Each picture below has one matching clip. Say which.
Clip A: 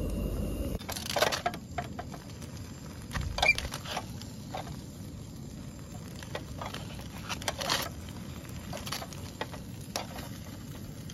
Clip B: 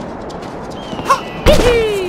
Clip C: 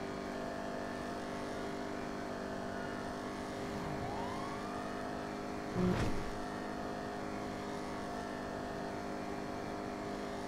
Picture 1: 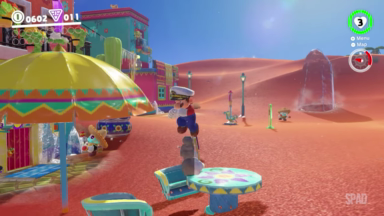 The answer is B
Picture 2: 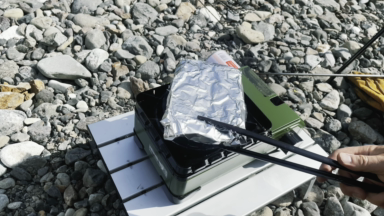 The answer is A